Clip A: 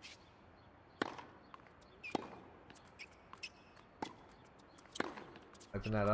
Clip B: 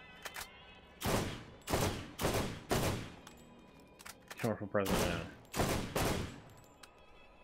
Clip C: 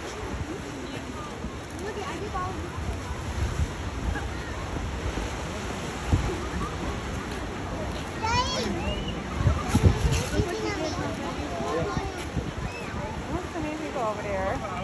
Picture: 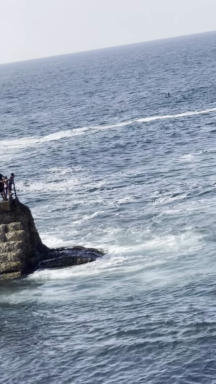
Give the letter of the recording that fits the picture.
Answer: C